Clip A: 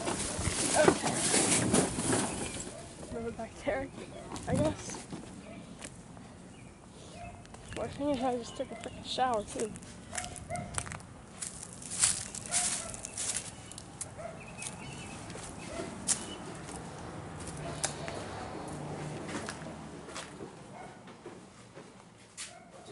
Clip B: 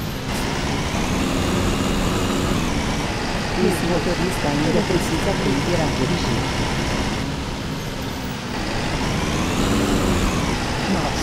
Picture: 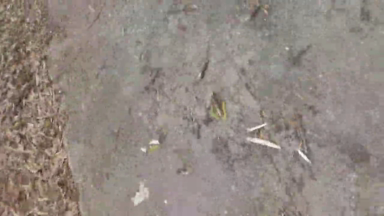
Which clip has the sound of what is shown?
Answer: A